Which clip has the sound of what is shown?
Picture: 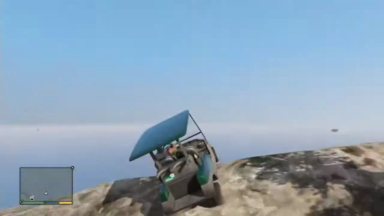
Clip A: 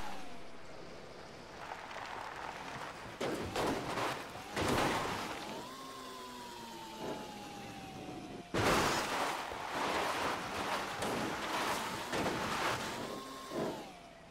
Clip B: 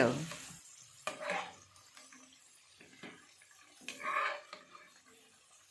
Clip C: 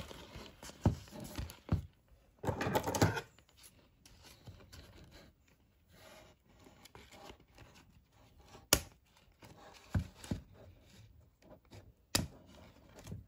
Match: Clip A